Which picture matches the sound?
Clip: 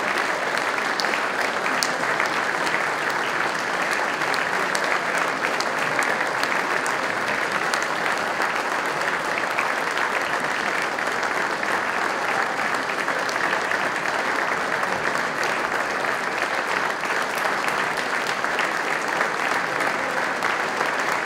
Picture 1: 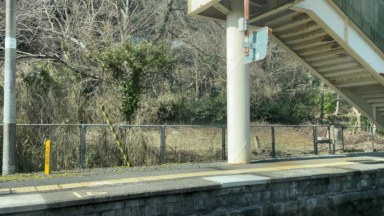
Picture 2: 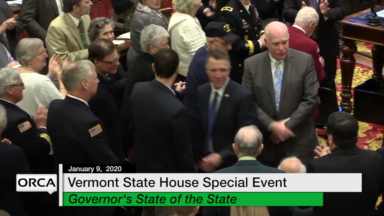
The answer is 2